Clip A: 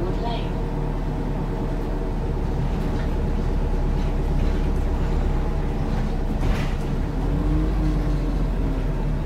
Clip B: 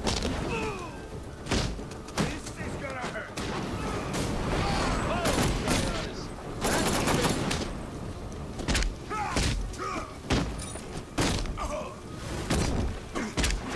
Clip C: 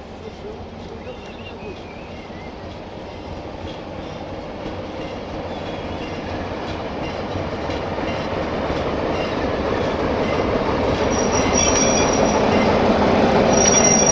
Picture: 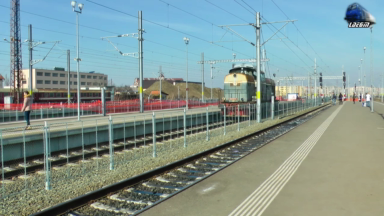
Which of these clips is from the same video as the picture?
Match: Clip C